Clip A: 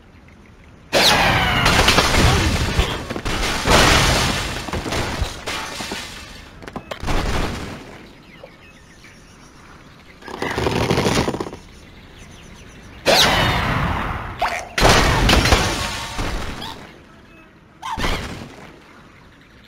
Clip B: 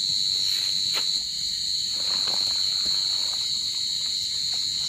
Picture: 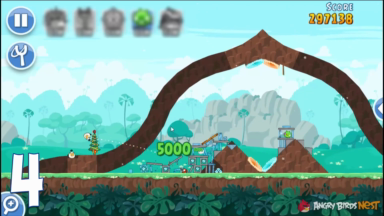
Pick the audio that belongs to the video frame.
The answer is A